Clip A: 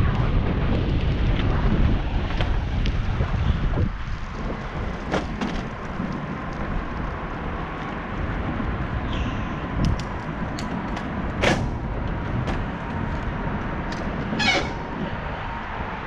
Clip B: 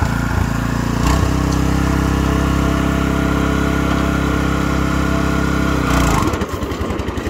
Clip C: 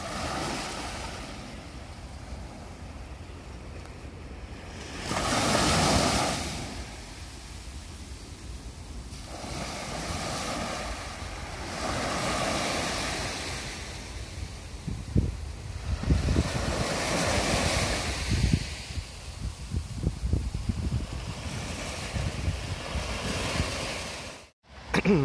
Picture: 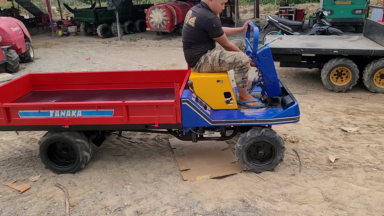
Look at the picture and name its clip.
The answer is B